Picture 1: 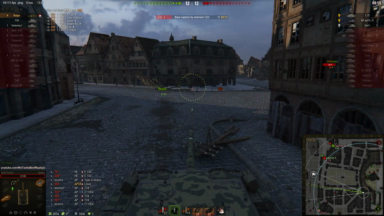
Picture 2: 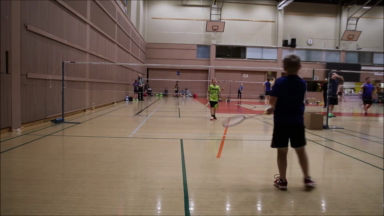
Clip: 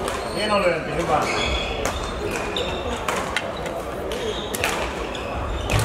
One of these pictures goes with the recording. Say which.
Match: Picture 2